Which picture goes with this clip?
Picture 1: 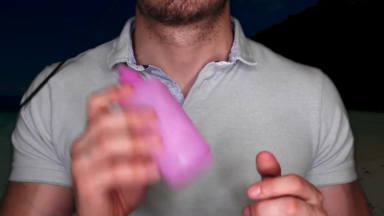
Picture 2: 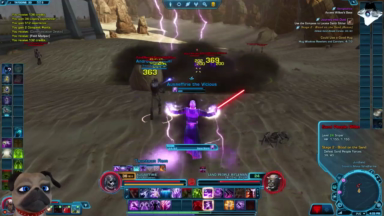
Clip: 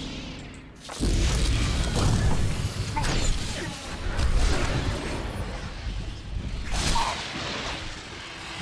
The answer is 2